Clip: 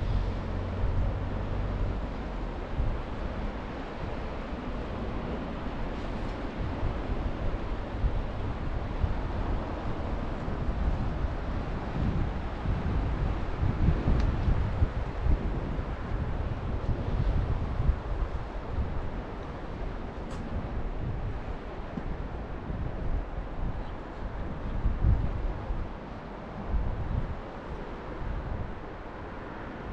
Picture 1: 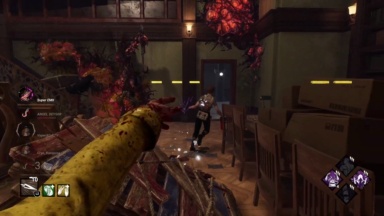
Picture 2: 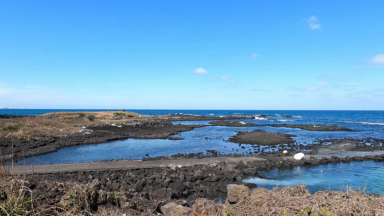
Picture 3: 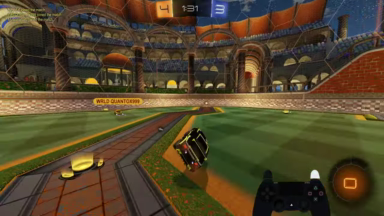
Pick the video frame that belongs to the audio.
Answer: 2